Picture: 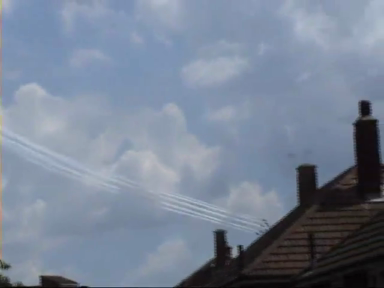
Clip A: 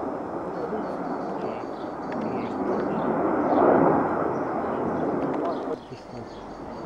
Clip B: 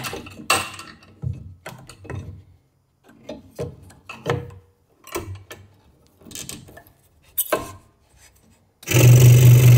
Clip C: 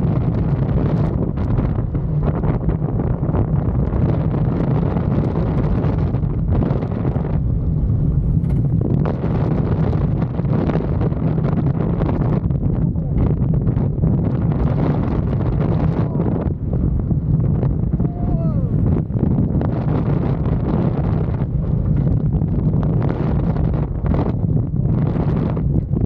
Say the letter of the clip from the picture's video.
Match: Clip A